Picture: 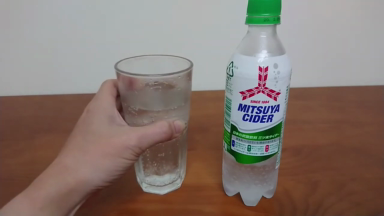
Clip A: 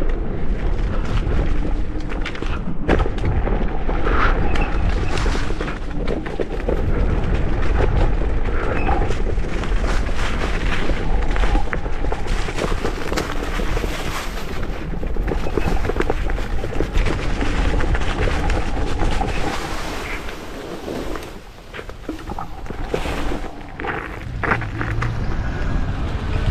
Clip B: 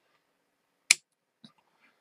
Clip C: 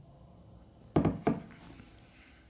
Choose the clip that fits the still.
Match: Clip C